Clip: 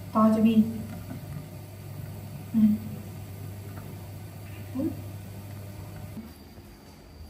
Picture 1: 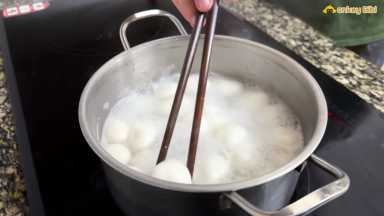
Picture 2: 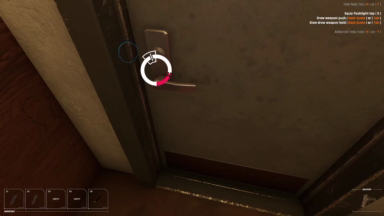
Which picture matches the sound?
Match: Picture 1